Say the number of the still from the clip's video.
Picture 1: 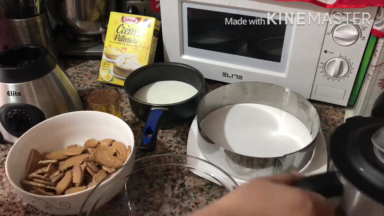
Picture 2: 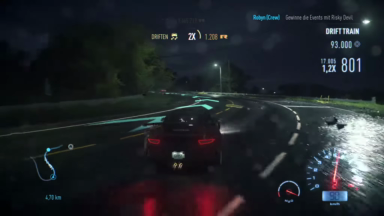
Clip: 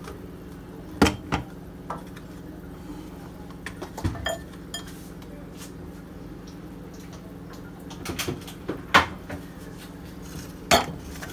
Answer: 1